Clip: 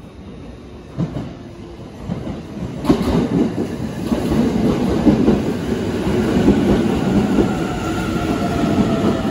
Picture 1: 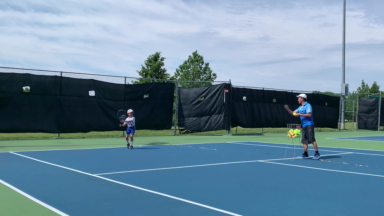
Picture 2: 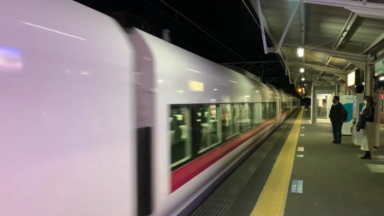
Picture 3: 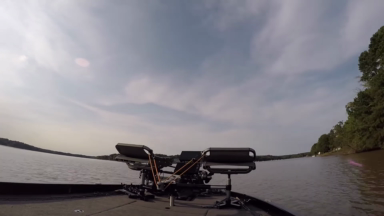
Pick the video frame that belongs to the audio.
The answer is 2